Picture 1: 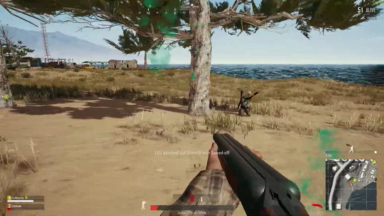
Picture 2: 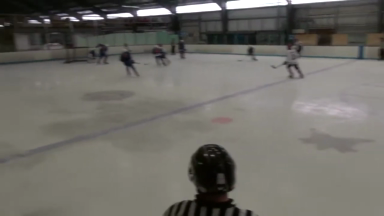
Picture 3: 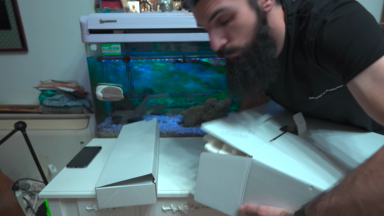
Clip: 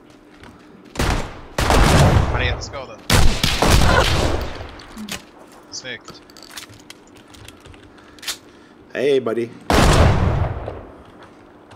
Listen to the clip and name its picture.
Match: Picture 1